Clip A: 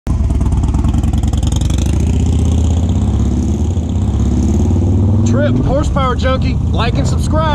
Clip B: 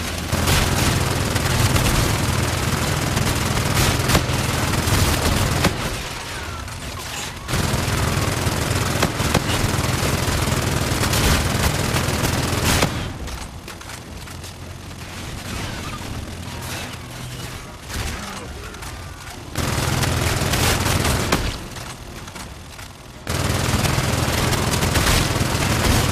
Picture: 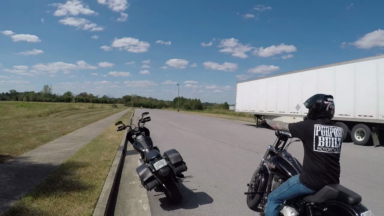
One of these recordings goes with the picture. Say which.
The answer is A